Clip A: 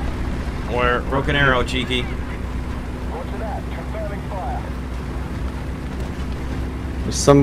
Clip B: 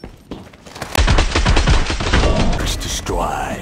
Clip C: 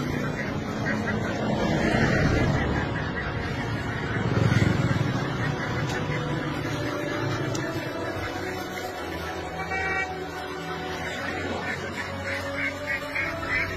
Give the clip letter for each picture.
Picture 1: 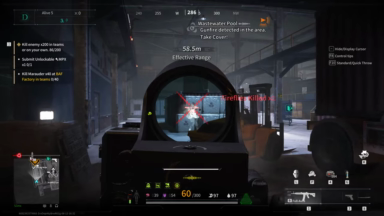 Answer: B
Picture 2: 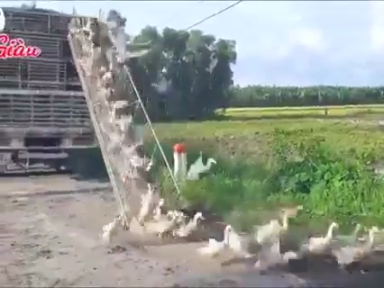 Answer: C